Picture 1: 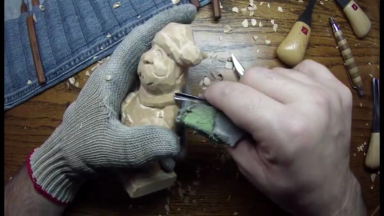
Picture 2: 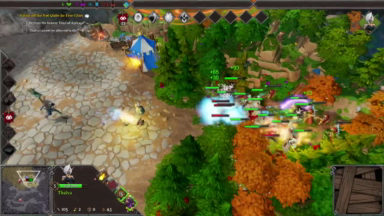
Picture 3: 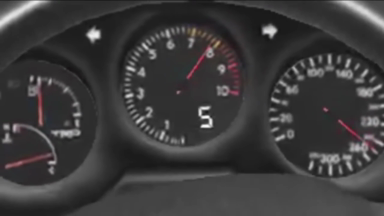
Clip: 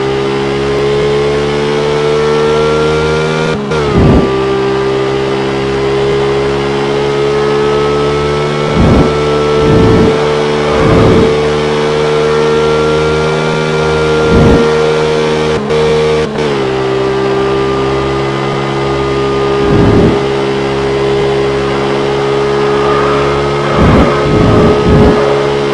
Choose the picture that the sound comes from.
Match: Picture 3